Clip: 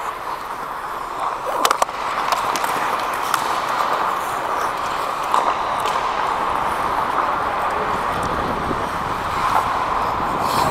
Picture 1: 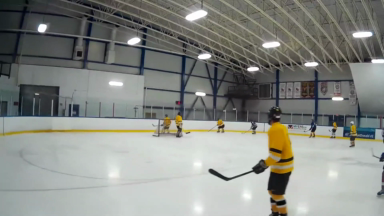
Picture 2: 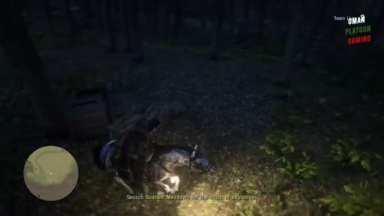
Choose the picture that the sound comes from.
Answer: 1